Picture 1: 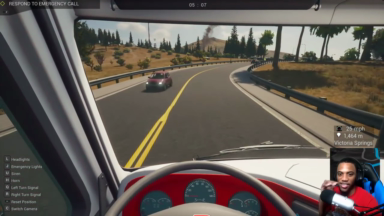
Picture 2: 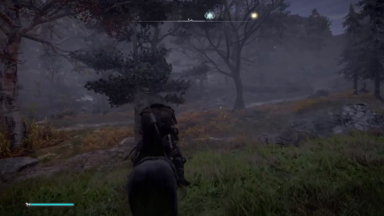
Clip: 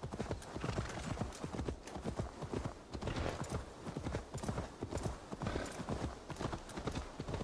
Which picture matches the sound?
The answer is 2